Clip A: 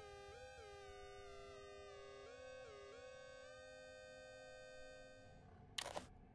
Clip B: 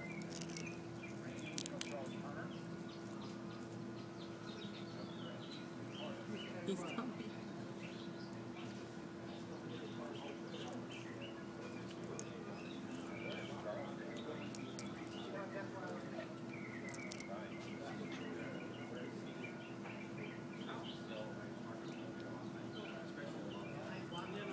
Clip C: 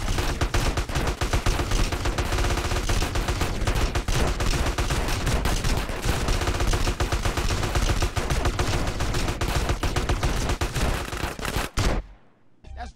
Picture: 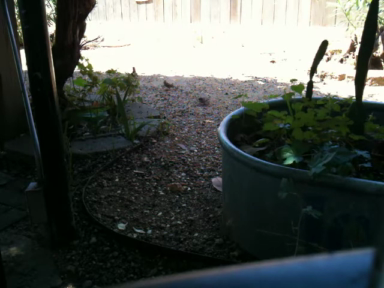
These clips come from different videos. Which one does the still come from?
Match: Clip B